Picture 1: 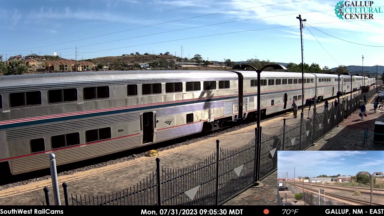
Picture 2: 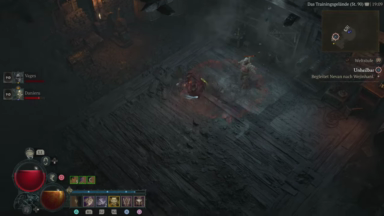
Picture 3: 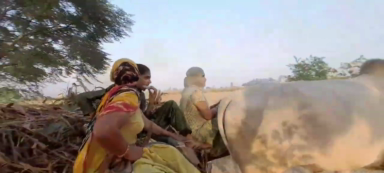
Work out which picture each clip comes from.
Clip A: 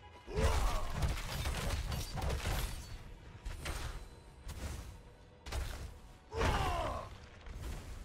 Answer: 2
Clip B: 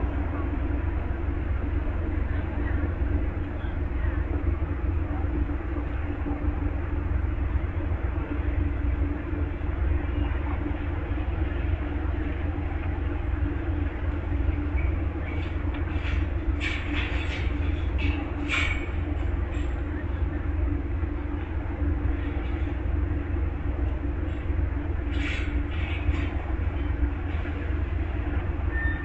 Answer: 1